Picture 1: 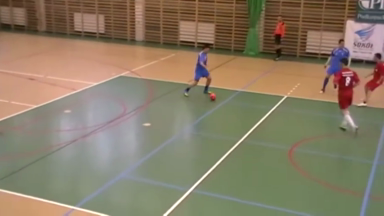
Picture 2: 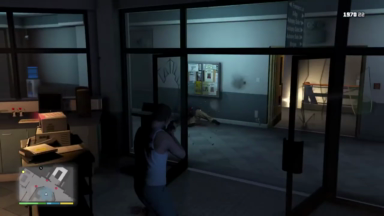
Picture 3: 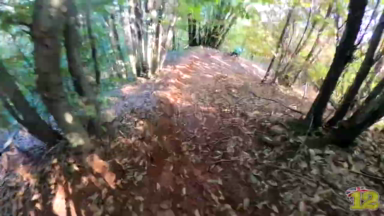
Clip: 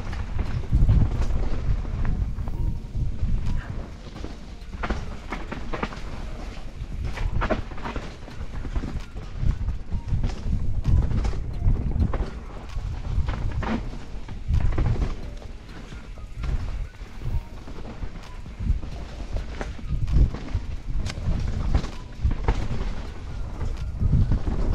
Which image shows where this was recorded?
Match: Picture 3